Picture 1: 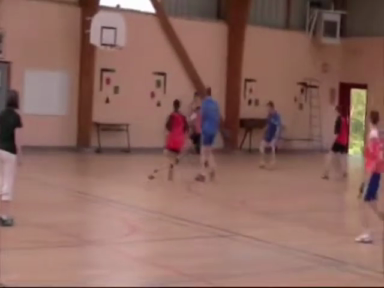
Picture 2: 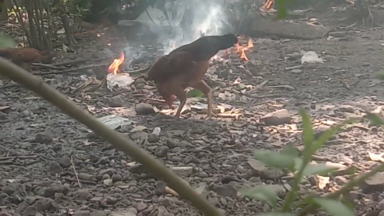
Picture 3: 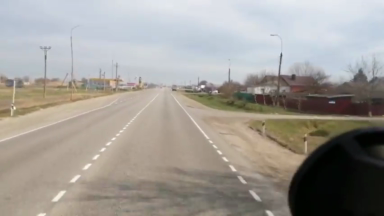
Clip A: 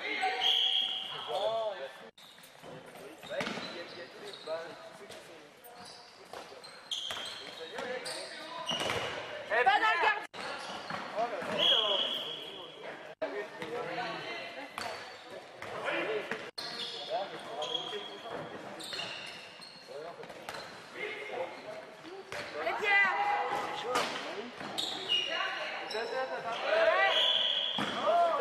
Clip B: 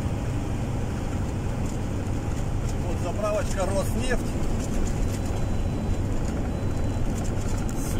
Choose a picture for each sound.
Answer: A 1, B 3